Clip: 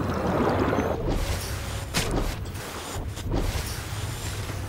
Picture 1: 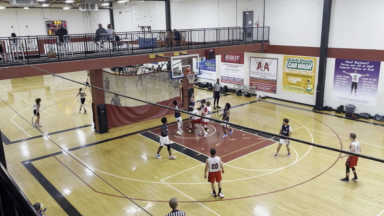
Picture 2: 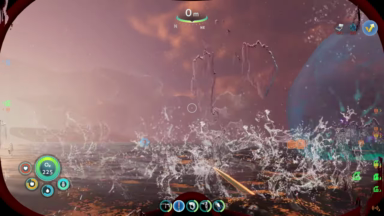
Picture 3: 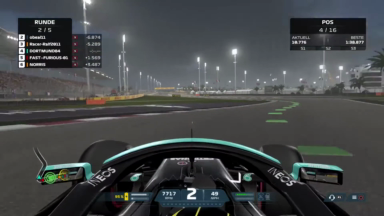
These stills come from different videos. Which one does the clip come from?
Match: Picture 2